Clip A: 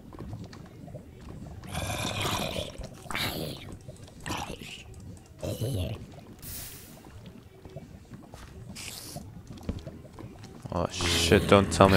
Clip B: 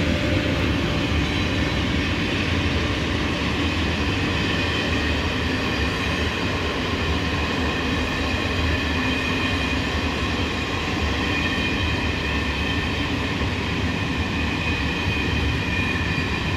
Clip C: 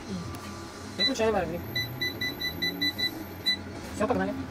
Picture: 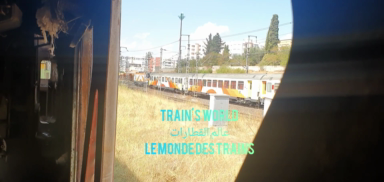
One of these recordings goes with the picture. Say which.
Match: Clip B